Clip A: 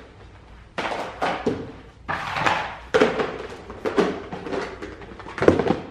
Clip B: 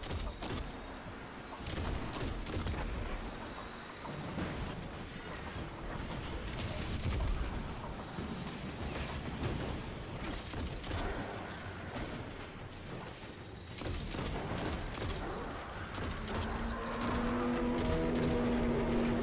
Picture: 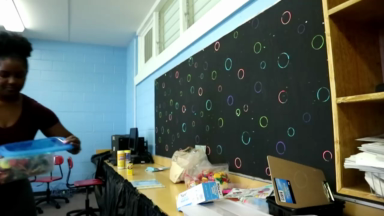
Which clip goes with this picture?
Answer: A